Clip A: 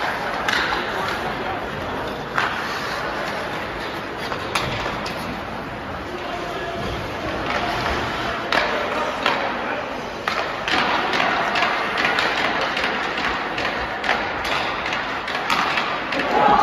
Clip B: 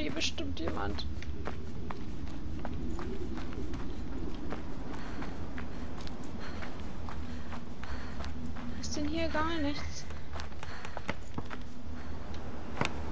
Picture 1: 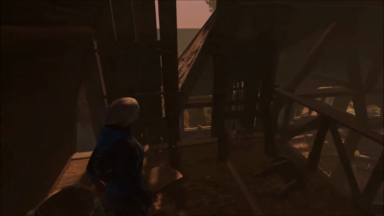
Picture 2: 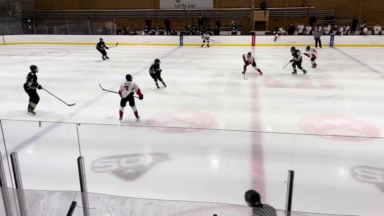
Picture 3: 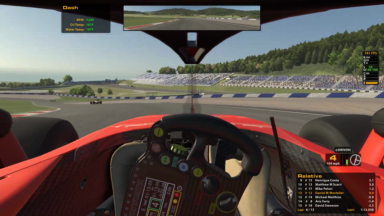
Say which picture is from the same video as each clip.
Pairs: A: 2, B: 1